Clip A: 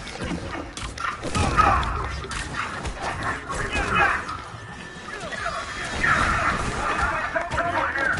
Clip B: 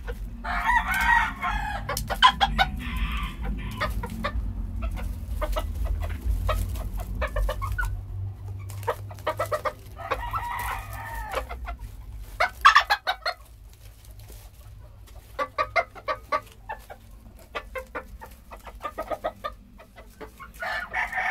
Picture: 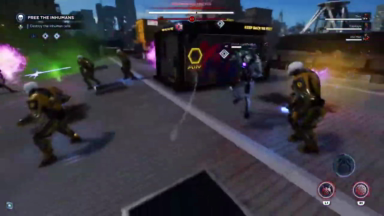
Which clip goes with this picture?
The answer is A